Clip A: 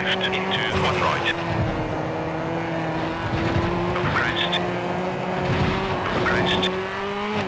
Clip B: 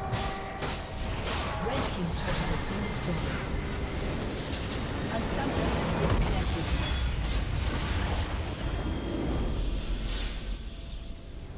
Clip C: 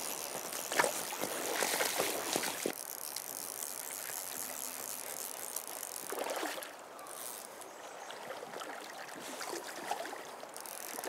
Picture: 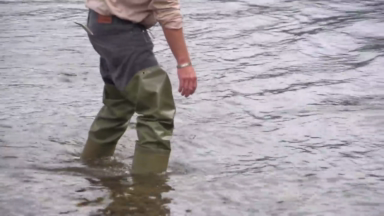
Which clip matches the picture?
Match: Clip C